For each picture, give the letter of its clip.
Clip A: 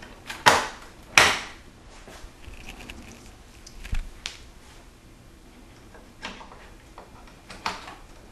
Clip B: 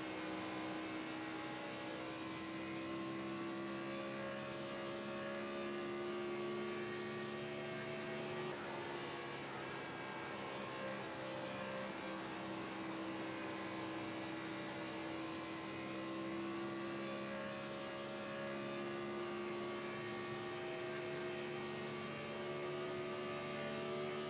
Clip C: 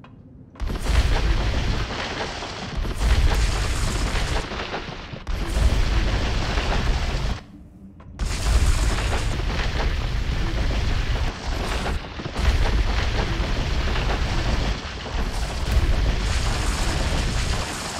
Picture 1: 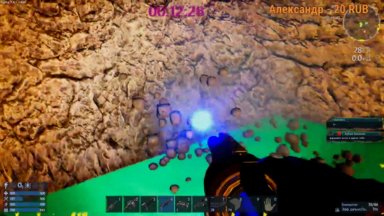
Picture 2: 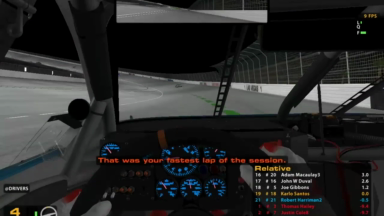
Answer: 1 C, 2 B